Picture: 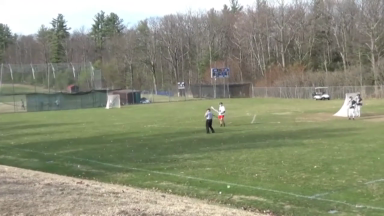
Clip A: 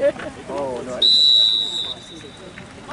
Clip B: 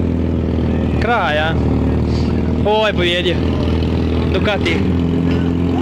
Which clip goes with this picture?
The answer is A